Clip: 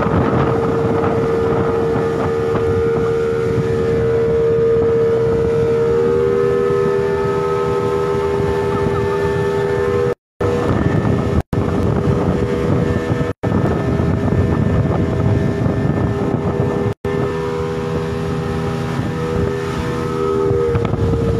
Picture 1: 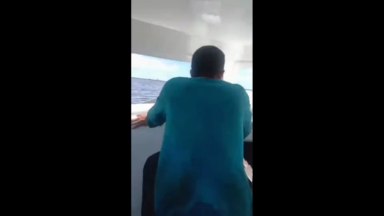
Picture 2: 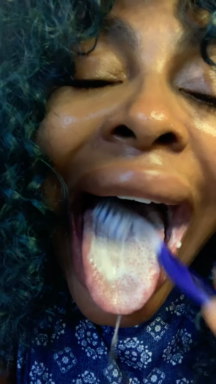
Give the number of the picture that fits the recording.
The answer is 1